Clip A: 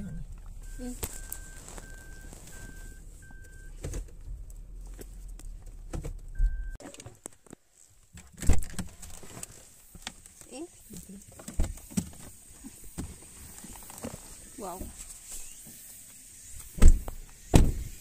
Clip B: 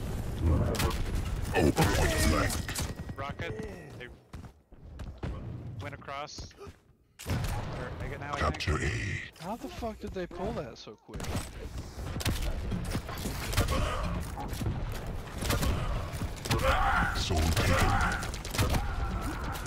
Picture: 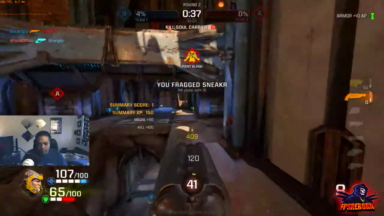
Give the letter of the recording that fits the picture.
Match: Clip B